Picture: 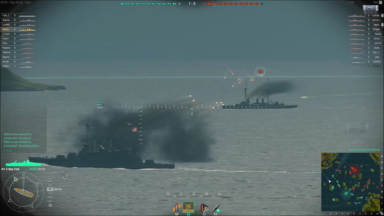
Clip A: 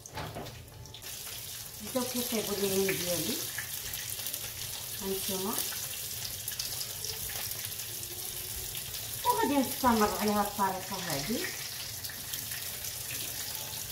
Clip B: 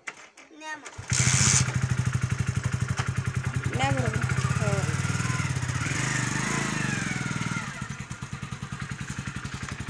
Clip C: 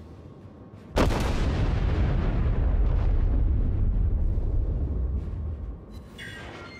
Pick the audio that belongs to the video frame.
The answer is C